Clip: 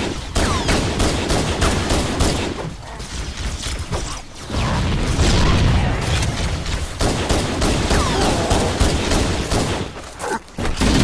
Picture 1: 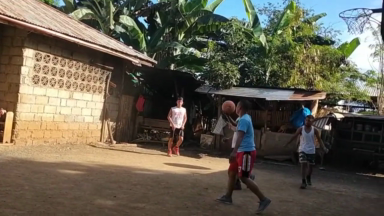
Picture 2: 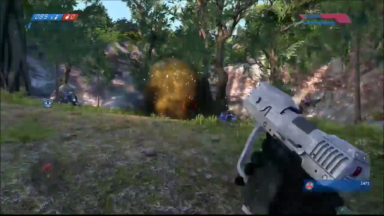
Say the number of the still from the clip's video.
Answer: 2